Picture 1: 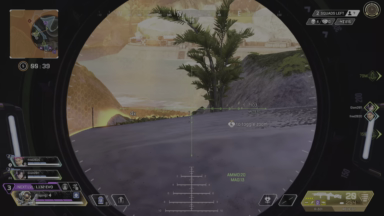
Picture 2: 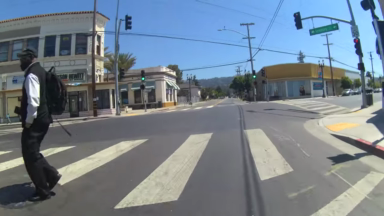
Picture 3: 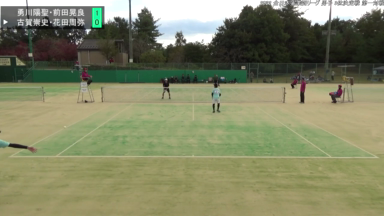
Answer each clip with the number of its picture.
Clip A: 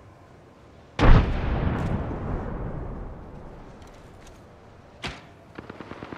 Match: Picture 1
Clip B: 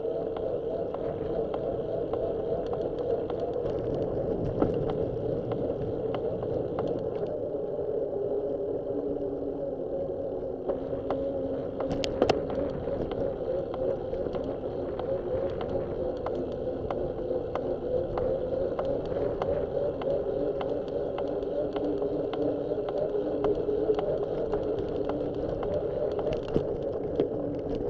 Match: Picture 2